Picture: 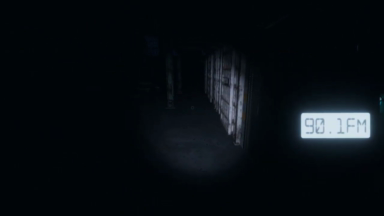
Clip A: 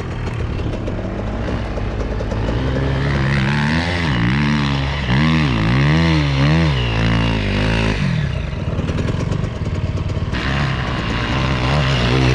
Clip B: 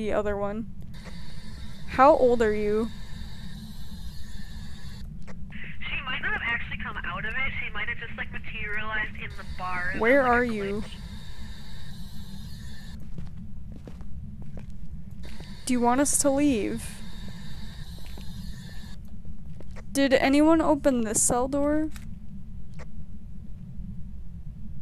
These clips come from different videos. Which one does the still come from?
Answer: B